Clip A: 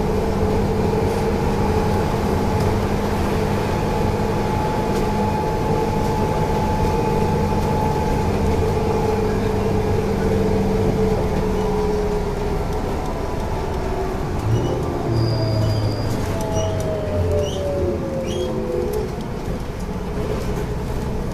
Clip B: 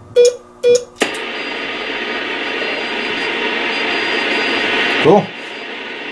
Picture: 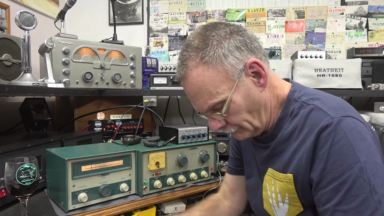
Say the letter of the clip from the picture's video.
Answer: B